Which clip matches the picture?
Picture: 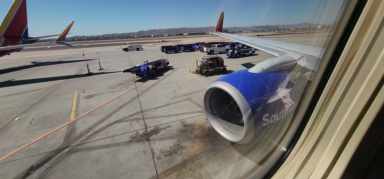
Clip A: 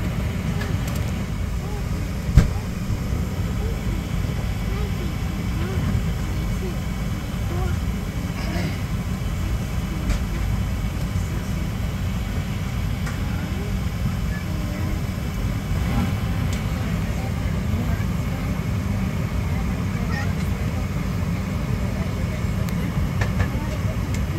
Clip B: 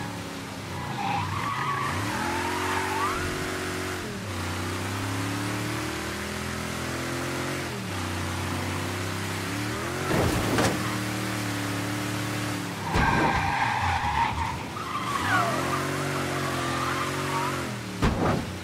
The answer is A